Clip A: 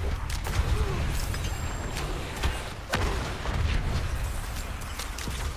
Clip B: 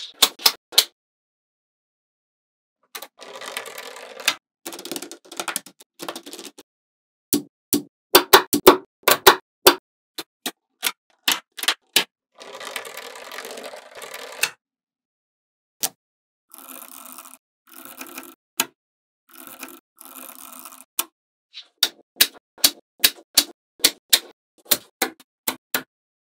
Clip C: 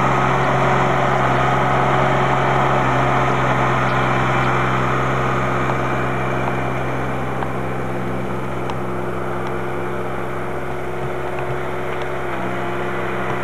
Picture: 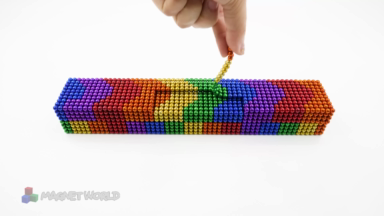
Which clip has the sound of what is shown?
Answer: B